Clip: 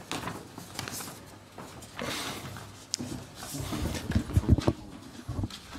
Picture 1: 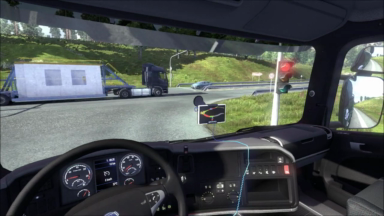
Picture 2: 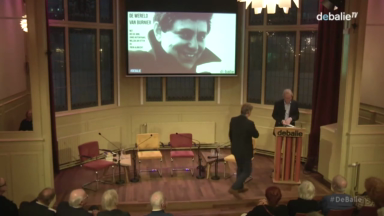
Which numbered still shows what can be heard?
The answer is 2